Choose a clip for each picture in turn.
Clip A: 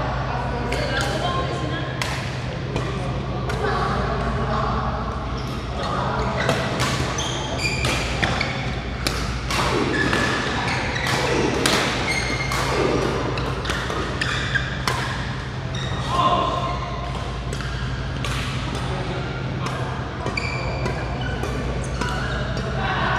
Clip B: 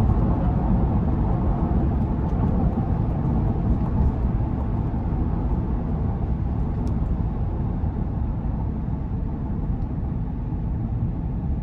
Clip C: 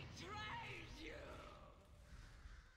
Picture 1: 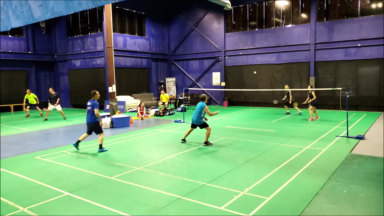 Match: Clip A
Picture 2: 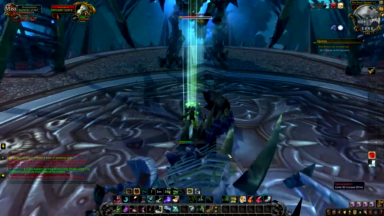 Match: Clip C